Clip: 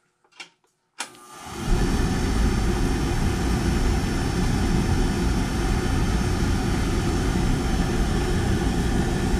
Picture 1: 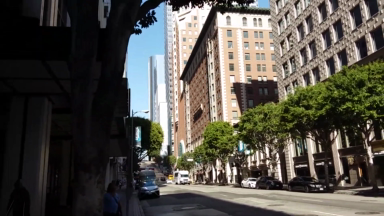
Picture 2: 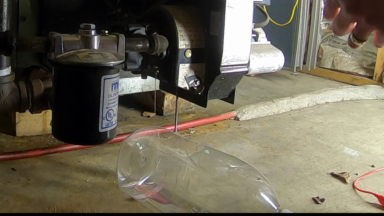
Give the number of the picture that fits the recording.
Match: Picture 2